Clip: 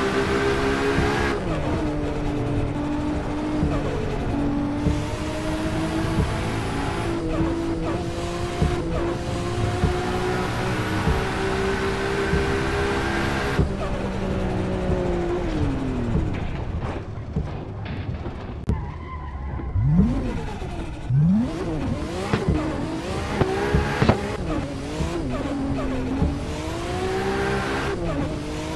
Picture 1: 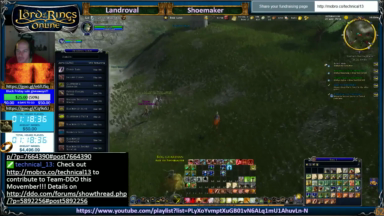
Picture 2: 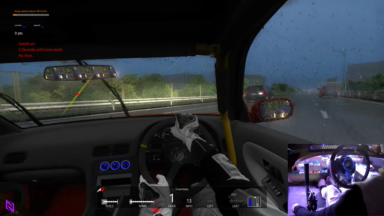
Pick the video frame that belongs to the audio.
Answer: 2